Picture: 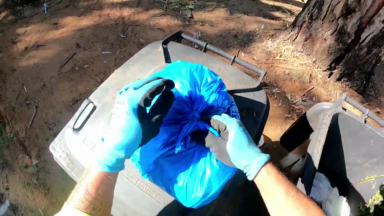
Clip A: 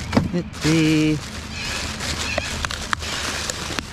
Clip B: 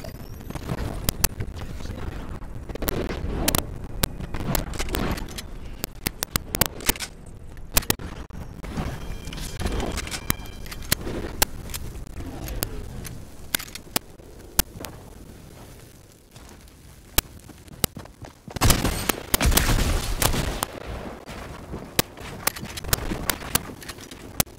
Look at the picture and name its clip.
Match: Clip A